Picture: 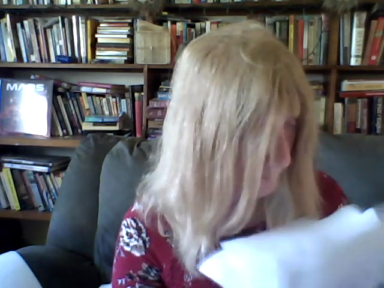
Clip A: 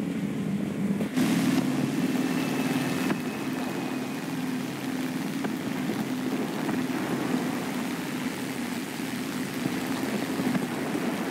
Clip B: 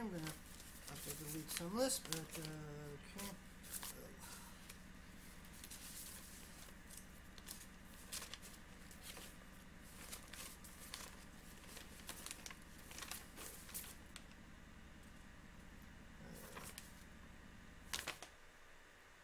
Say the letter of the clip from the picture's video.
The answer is B